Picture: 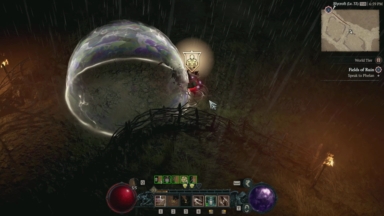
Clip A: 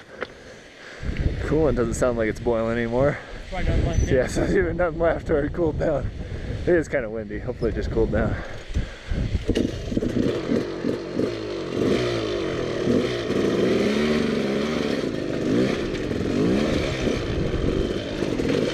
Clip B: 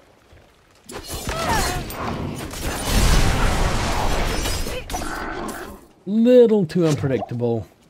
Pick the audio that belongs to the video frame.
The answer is B